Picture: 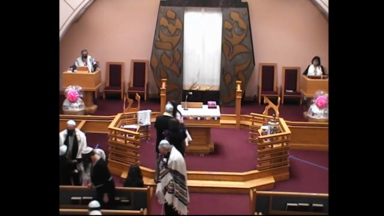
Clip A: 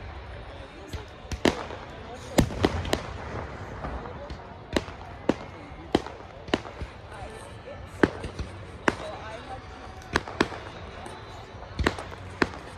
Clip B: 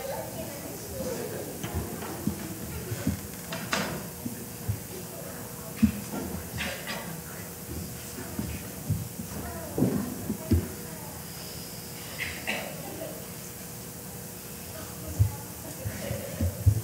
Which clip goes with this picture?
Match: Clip B